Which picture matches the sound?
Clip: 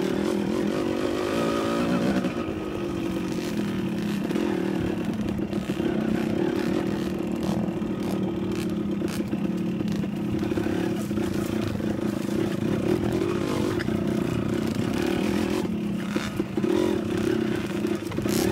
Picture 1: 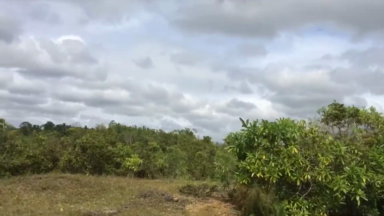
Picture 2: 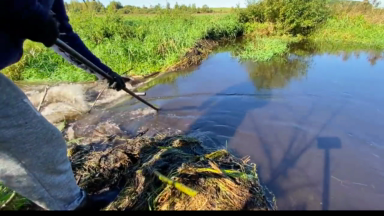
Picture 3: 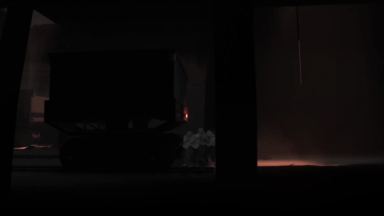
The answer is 1